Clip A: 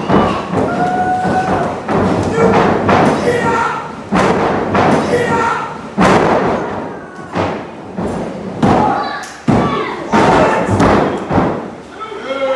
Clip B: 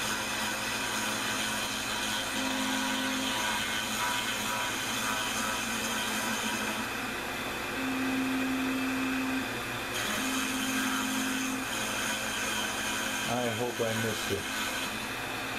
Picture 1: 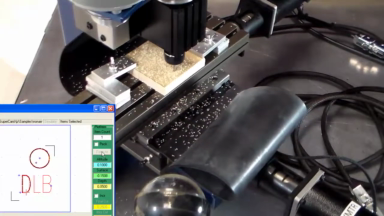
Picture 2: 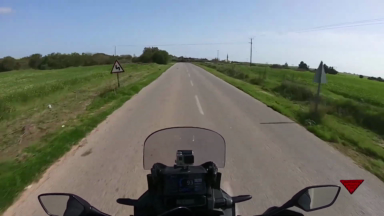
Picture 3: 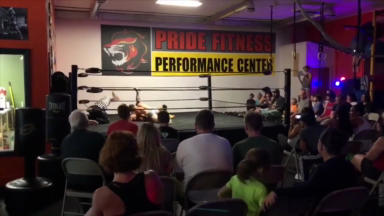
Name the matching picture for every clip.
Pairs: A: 3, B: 1